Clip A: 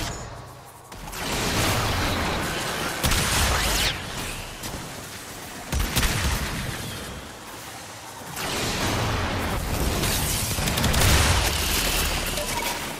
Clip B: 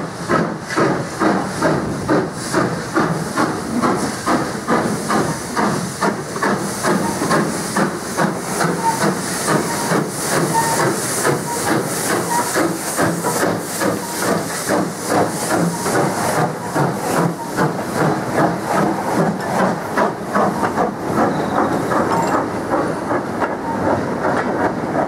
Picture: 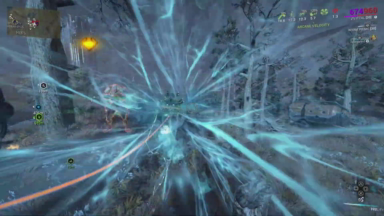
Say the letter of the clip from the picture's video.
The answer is A